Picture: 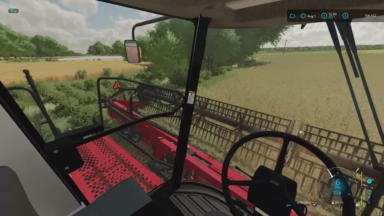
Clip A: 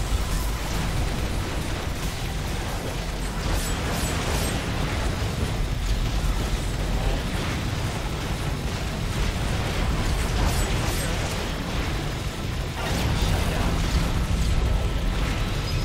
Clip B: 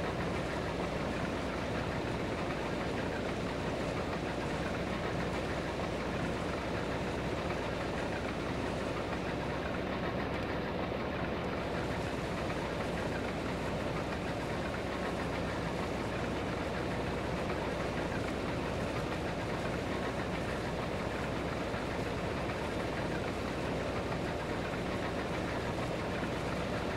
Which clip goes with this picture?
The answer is B